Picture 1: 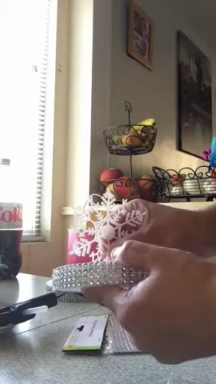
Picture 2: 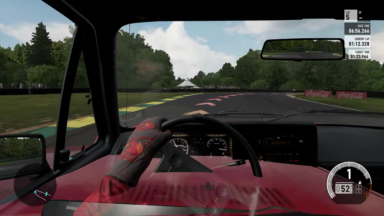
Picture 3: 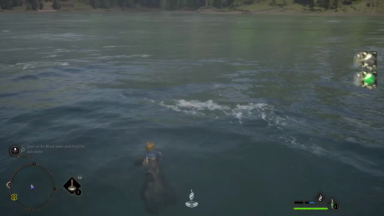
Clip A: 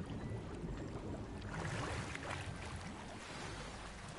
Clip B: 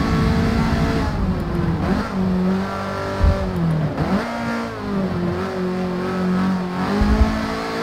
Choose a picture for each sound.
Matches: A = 3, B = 2